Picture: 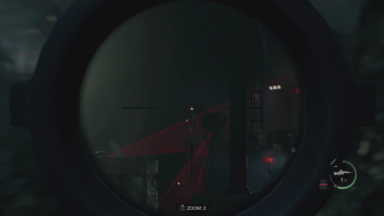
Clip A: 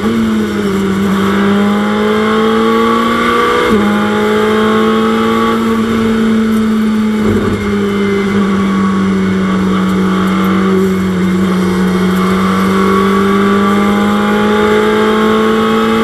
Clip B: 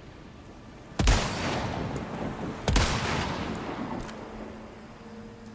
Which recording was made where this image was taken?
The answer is B